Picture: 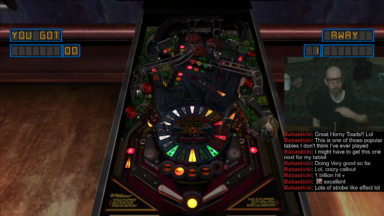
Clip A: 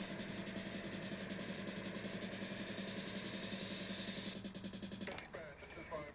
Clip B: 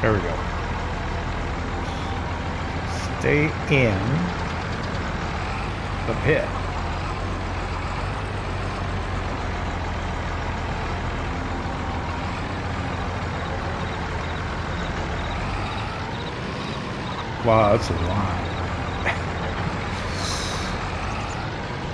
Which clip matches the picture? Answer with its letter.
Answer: A